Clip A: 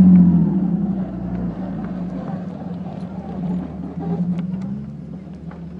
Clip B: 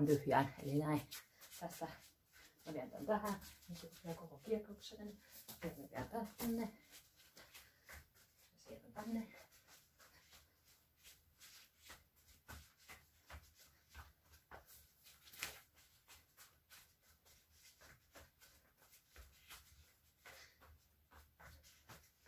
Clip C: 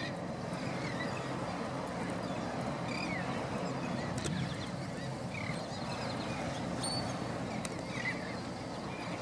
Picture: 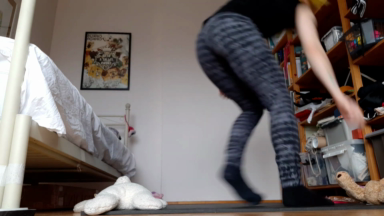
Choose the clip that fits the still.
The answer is B